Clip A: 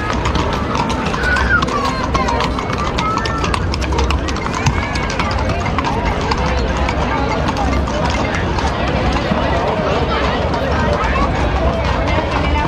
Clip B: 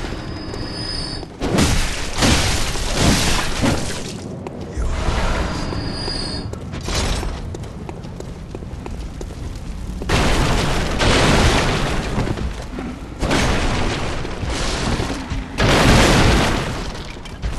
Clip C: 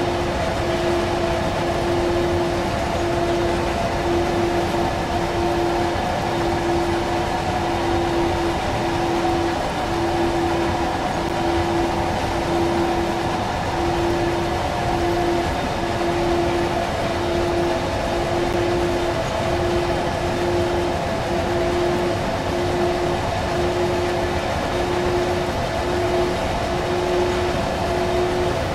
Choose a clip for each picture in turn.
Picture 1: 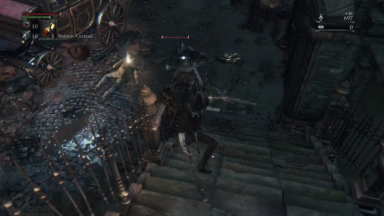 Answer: B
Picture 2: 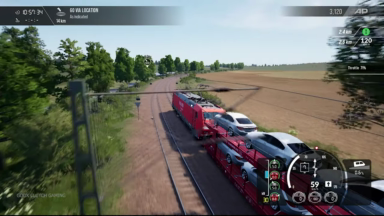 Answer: C